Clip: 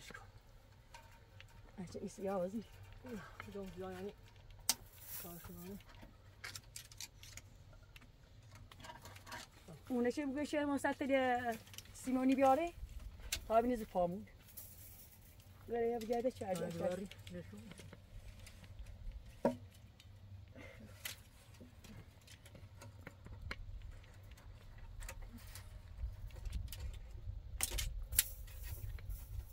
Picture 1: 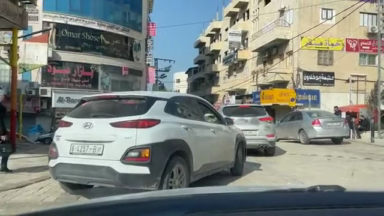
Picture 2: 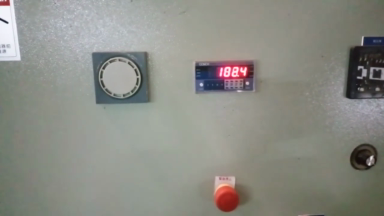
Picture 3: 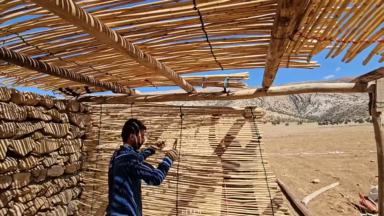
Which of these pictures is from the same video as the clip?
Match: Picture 3